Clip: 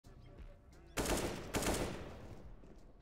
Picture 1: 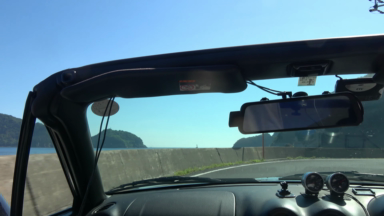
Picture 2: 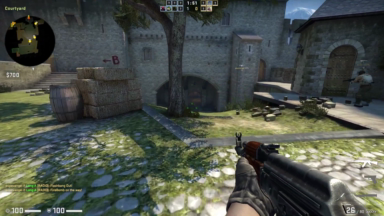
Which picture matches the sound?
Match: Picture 2